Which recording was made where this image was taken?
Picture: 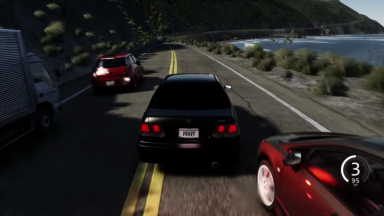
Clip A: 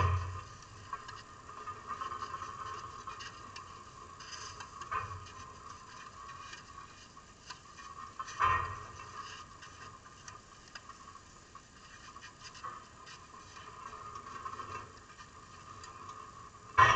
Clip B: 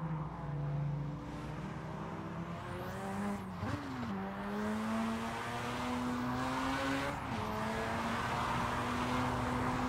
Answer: B